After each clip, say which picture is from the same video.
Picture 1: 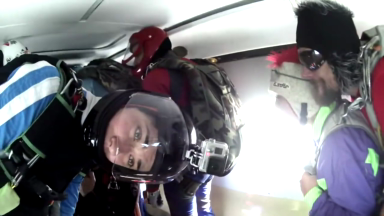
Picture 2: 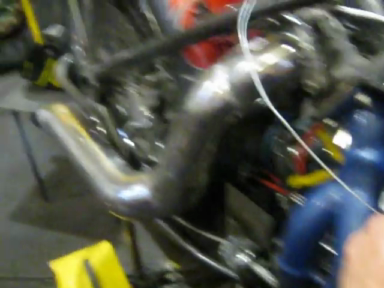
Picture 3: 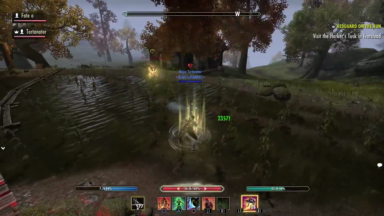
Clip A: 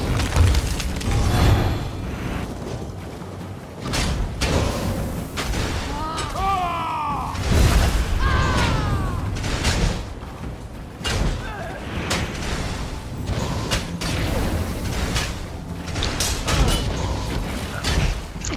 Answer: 3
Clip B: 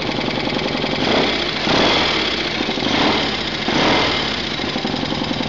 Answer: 2